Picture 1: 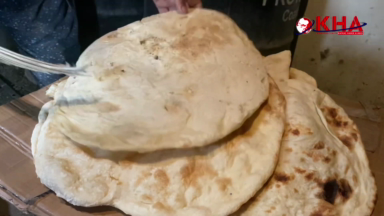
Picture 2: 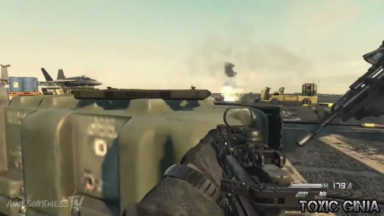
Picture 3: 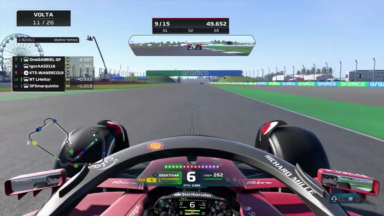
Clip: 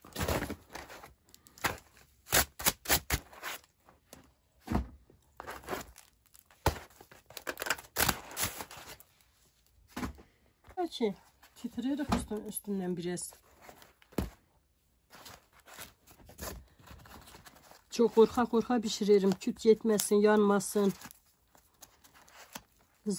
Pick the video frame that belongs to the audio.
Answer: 1